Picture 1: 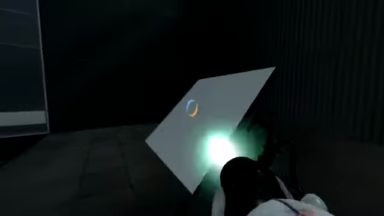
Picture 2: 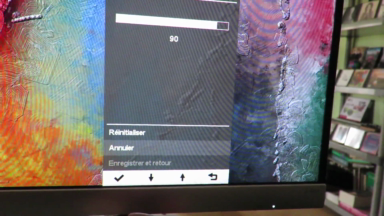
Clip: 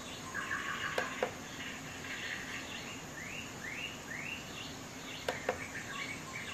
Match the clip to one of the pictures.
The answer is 2